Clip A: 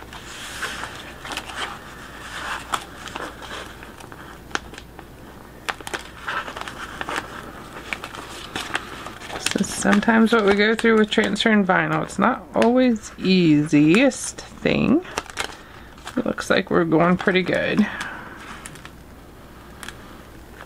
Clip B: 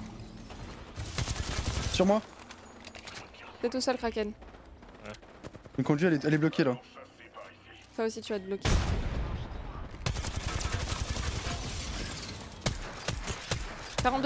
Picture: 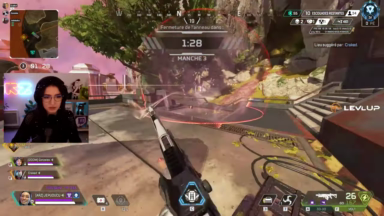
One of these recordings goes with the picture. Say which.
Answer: B